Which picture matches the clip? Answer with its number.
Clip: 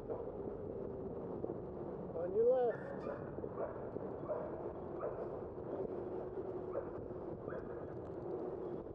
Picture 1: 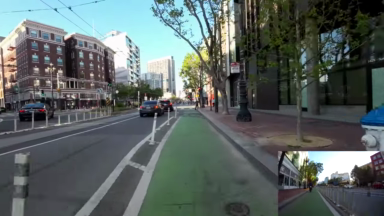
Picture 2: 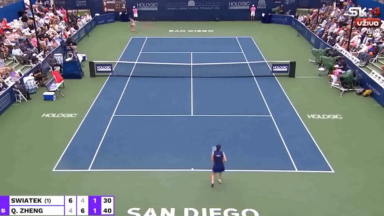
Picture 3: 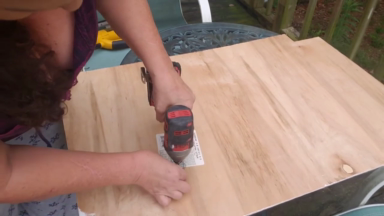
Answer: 1